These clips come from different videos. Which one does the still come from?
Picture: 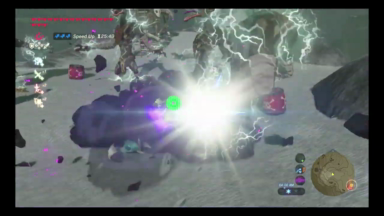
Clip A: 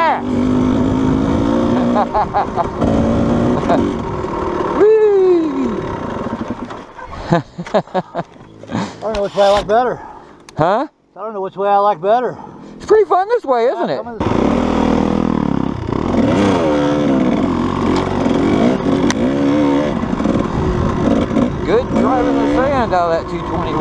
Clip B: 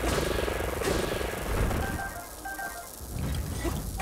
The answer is B